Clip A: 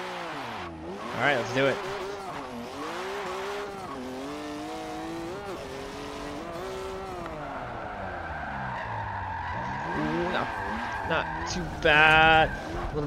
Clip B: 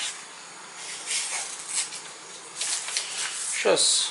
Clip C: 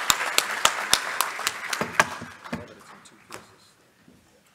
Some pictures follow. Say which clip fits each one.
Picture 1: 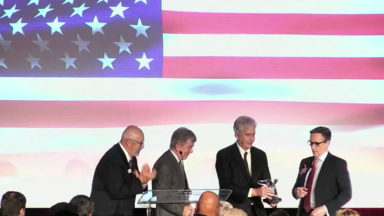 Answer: C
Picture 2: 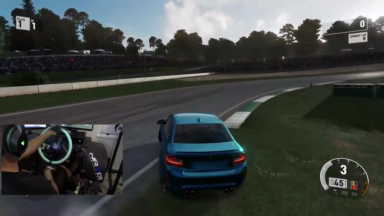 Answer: A